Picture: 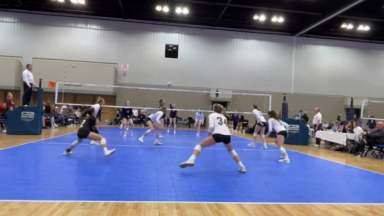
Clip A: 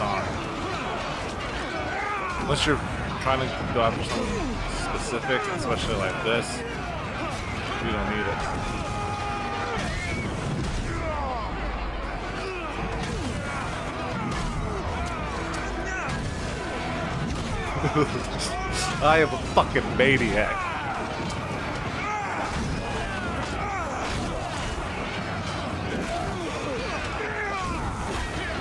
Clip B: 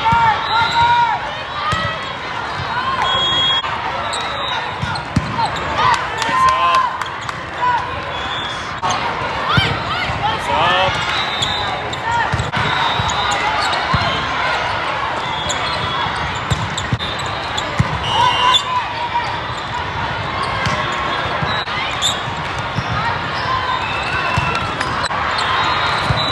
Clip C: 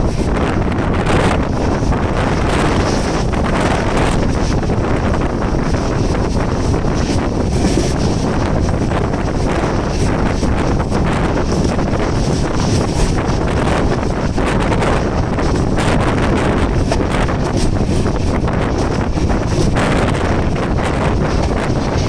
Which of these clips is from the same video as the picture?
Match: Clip B